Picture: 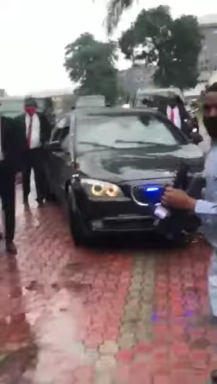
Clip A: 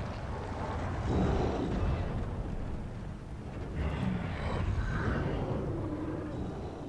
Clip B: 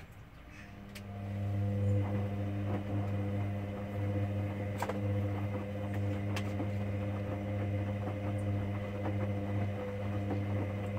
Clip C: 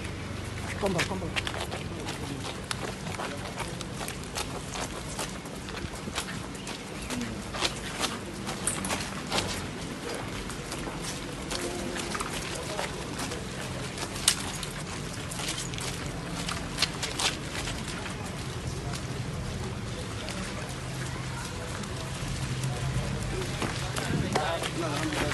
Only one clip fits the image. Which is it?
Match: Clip C